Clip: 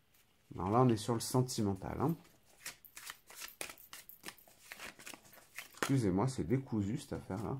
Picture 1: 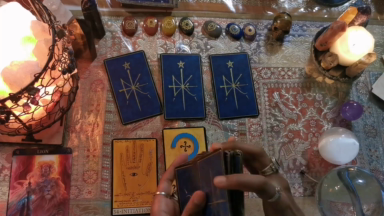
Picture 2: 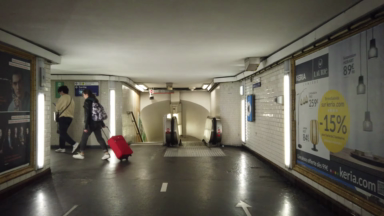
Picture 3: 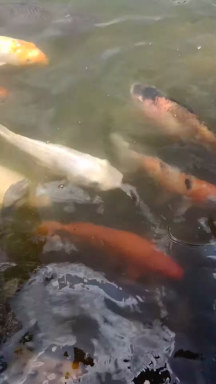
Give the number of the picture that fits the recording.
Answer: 1